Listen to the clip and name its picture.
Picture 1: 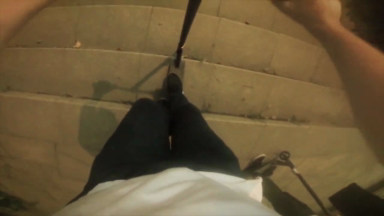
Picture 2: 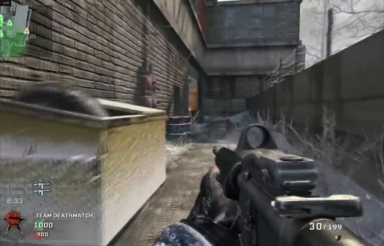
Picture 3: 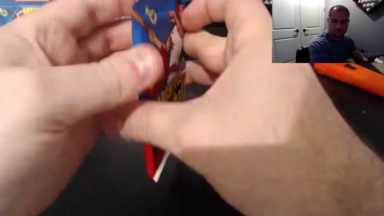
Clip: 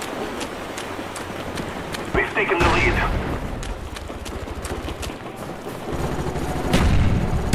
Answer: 2